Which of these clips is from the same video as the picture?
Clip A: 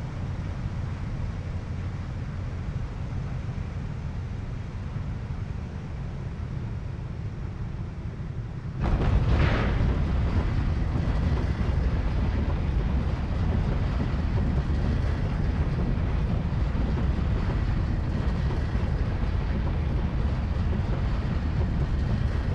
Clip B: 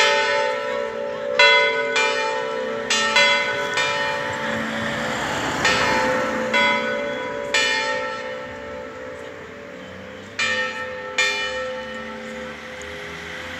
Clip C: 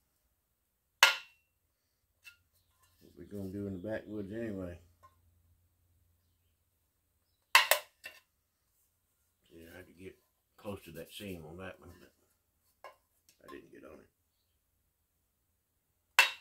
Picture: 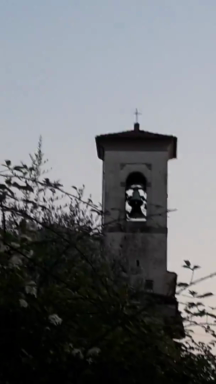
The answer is B